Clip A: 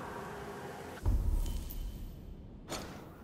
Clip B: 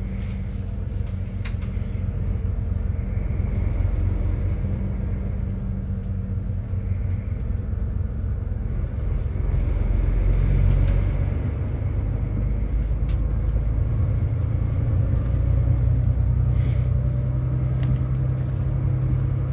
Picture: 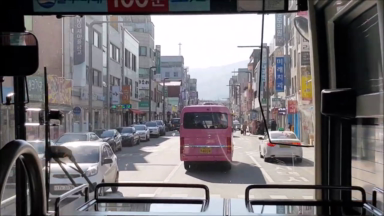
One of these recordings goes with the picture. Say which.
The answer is B